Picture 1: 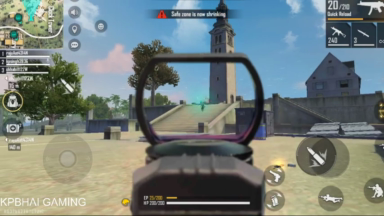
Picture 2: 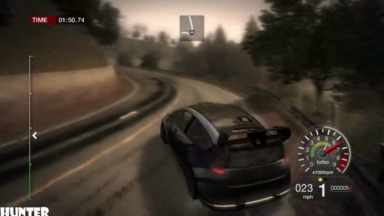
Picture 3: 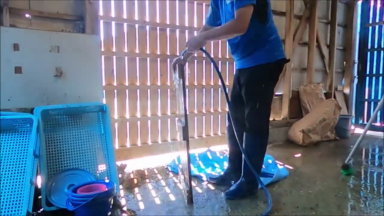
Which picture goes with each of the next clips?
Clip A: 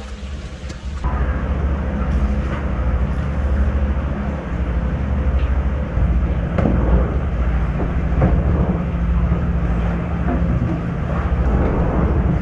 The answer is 3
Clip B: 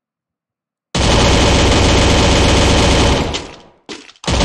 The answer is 1